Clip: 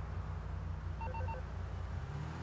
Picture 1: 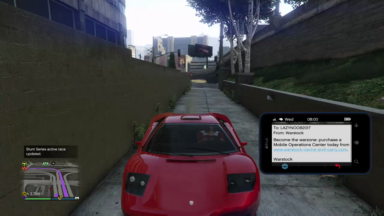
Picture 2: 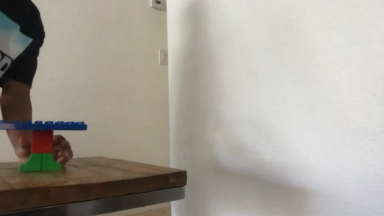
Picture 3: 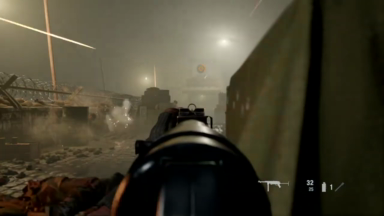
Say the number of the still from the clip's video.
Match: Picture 1